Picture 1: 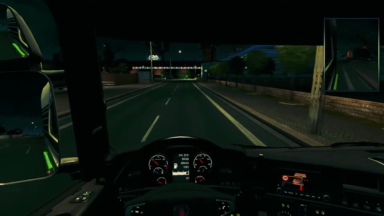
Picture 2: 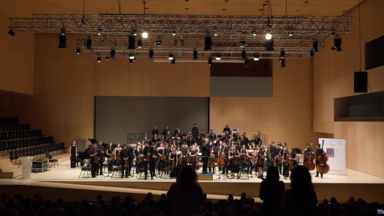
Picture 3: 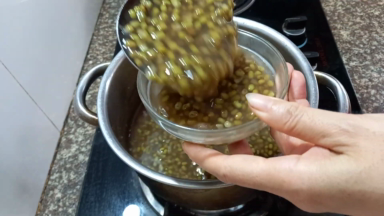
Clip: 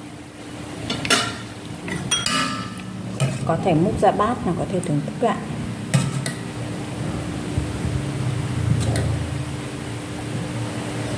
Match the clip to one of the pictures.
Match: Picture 3